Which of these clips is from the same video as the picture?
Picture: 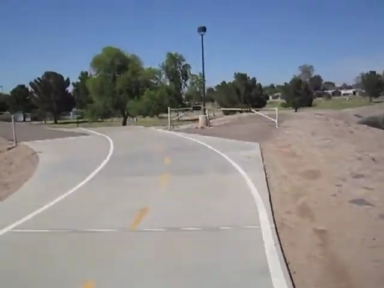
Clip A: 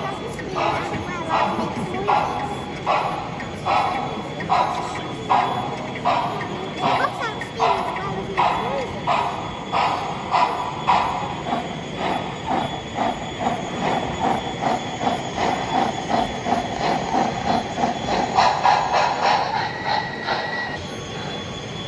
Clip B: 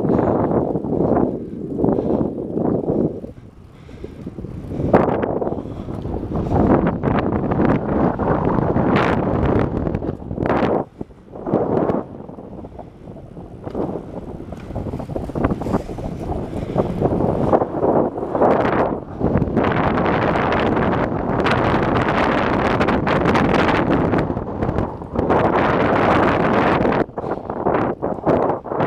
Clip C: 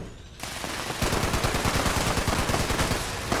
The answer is B